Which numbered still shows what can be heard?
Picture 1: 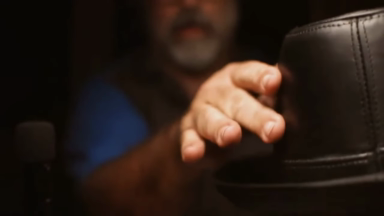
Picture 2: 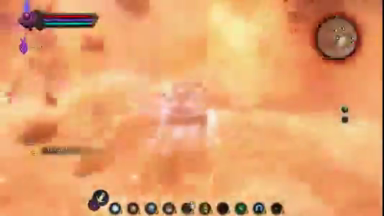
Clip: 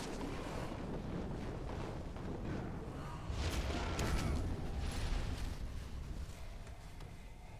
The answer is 2